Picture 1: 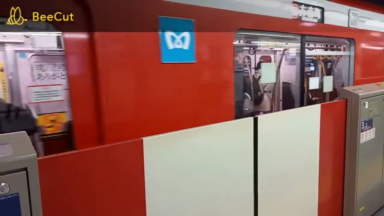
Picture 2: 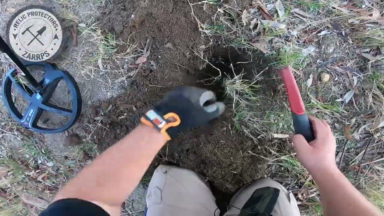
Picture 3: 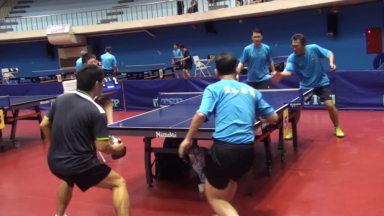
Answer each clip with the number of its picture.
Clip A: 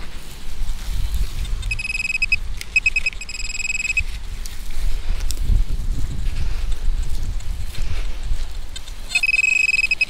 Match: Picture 2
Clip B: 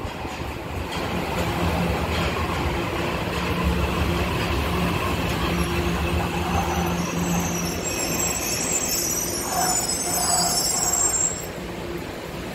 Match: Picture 1